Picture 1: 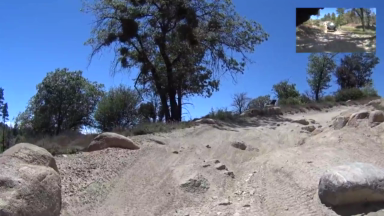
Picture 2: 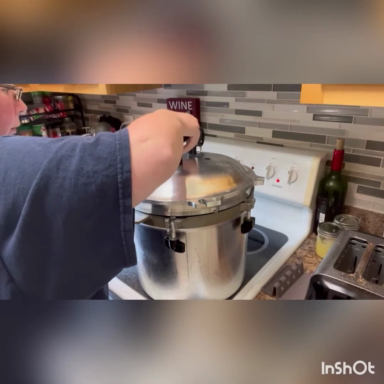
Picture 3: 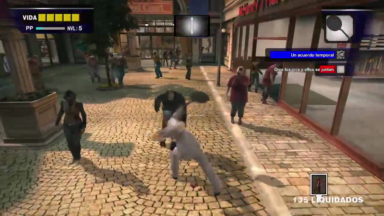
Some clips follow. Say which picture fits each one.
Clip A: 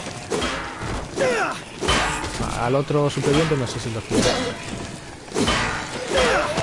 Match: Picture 3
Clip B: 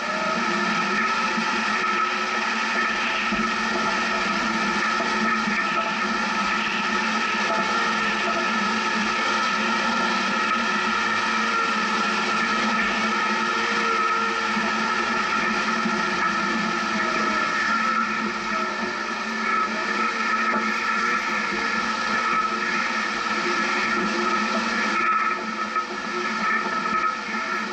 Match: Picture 1